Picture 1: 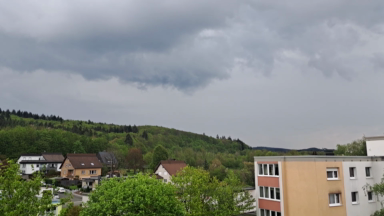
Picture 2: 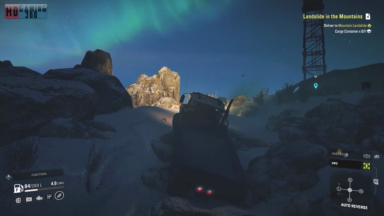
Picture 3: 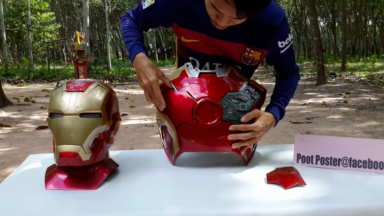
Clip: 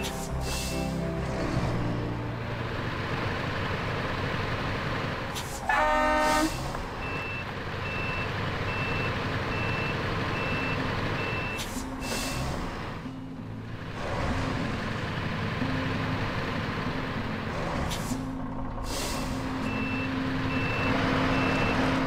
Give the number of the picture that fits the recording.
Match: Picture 2